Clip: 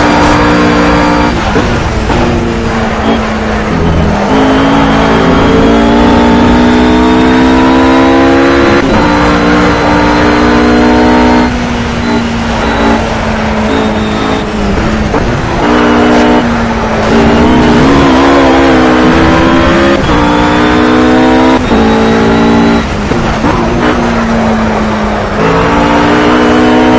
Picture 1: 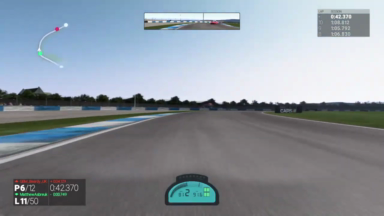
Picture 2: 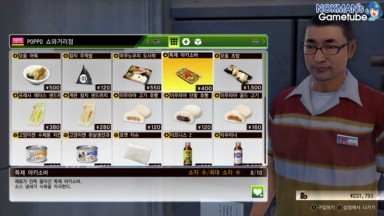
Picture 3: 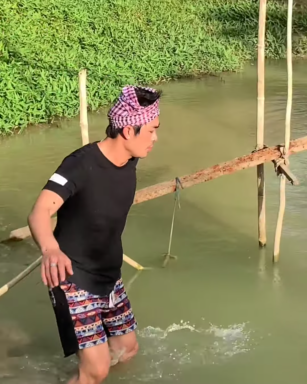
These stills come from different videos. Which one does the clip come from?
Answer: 1